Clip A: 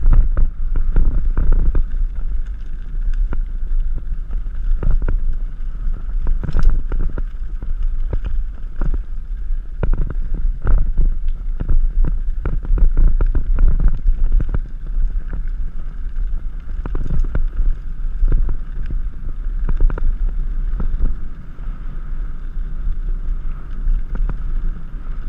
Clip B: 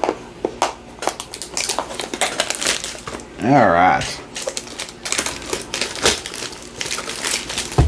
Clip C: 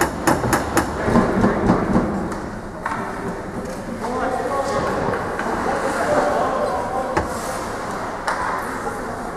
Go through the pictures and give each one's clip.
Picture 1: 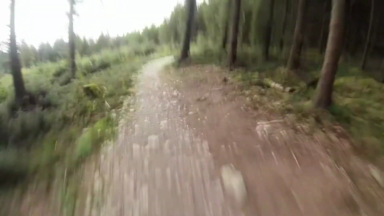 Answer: A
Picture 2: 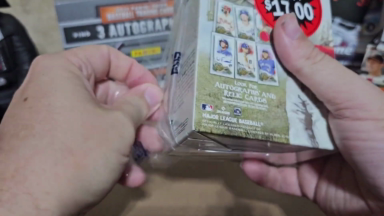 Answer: B